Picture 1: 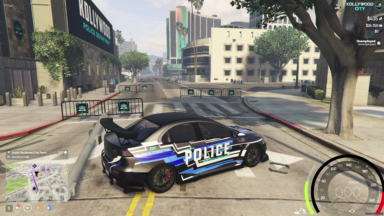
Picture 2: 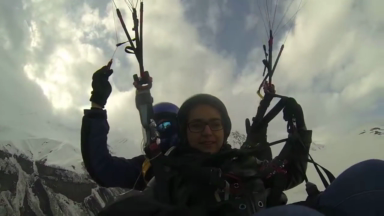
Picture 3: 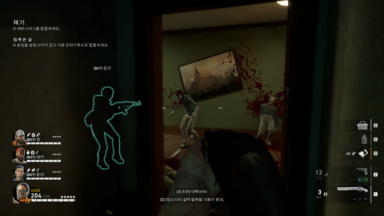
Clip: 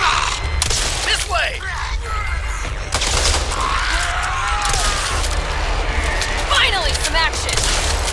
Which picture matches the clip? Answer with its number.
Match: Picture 3